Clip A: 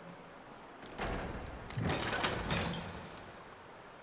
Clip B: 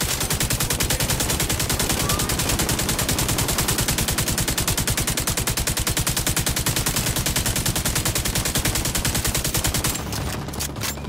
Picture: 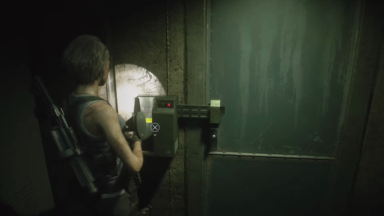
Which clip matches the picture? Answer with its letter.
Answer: A